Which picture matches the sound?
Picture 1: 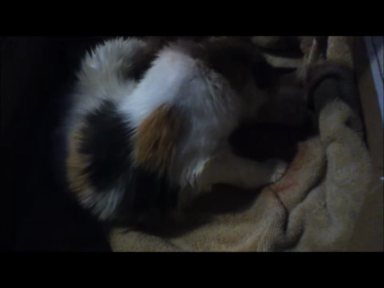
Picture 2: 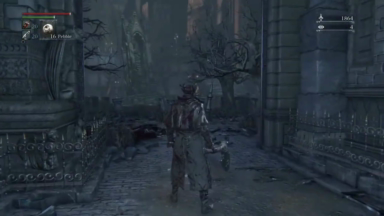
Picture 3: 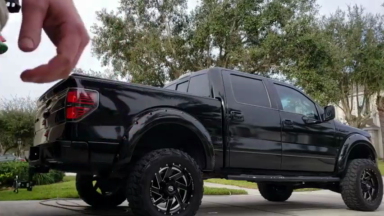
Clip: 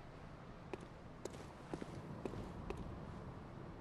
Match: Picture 2